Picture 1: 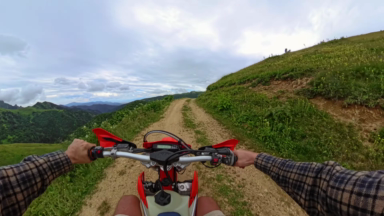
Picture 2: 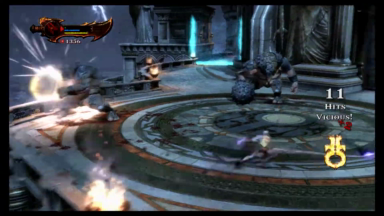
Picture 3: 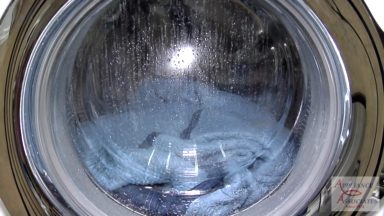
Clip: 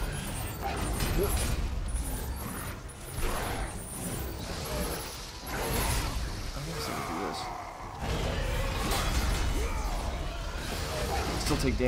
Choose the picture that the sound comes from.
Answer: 2